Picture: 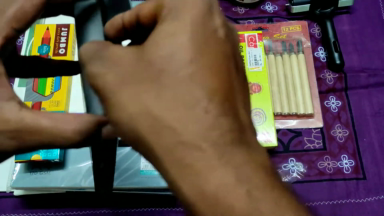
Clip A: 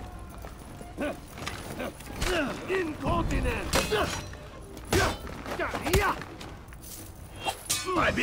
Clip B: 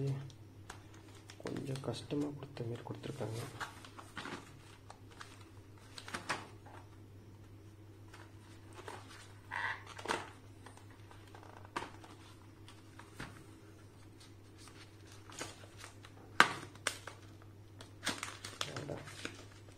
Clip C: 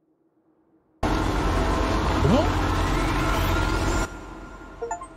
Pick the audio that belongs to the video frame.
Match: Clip B